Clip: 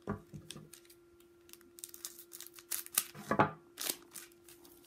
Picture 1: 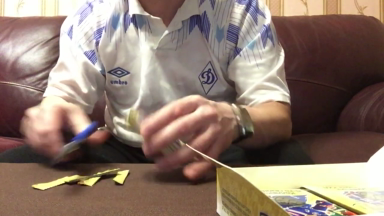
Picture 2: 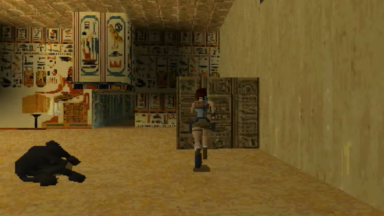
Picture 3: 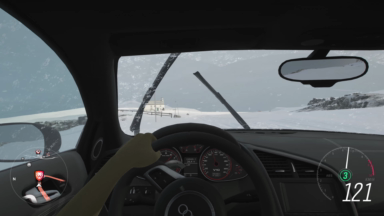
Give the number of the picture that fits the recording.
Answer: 1